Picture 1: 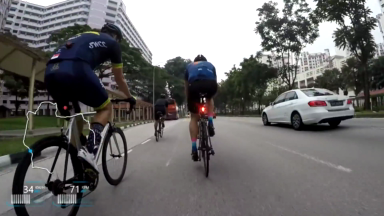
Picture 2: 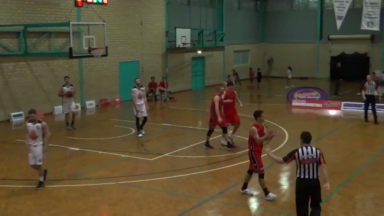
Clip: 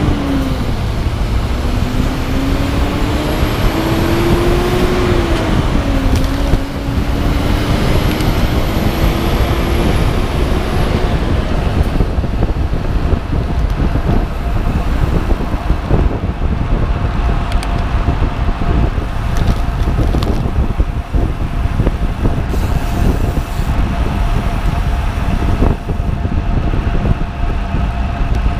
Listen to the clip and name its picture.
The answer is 1